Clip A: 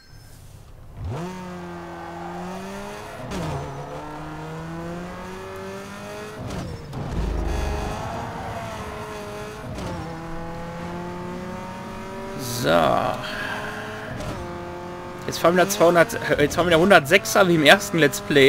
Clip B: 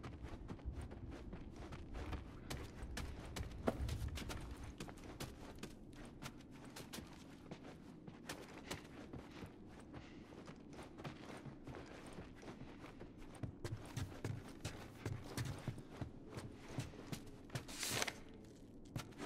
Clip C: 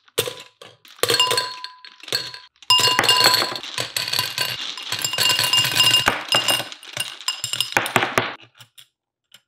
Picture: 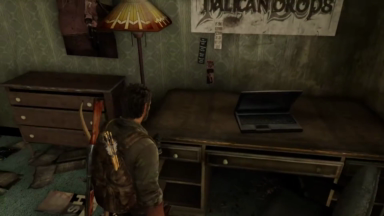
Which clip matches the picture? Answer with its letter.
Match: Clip B